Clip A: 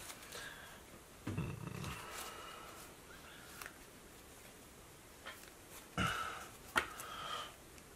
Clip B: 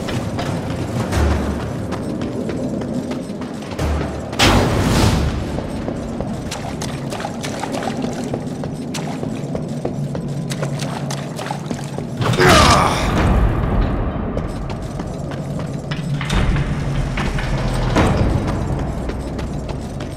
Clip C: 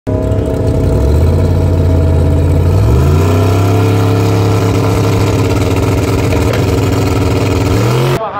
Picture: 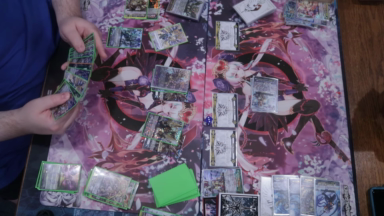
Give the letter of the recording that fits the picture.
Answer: A